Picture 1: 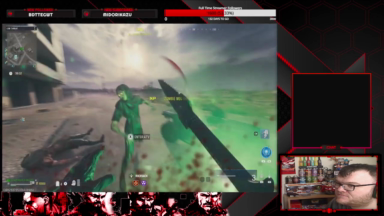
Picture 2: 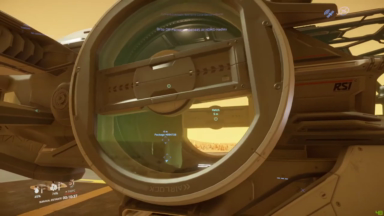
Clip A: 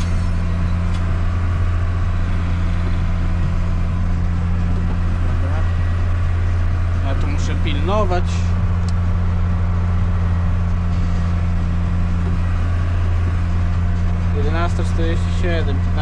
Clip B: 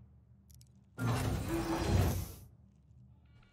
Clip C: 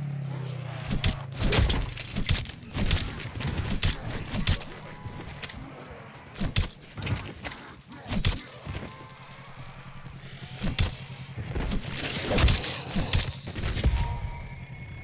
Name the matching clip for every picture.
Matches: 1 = C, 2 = B